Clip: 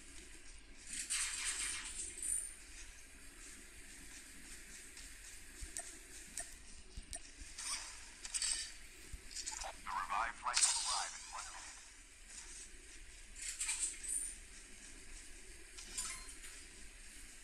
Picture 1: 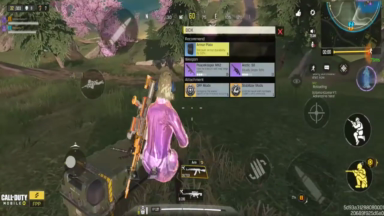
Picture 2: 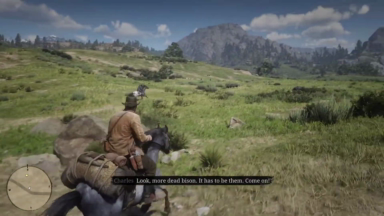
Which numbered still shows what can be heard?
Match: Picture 1